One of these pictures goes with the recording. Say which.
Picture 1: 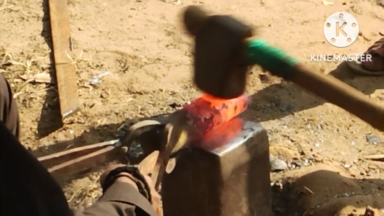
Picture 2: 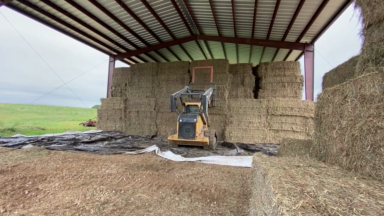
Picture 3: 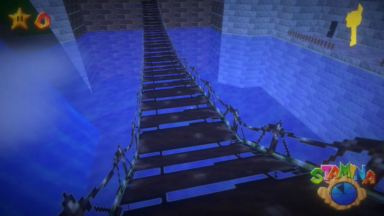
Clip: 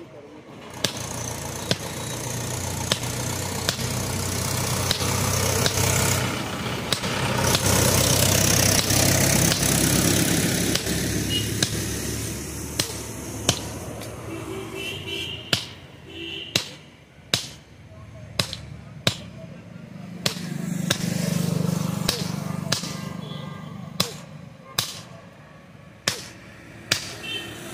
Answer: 1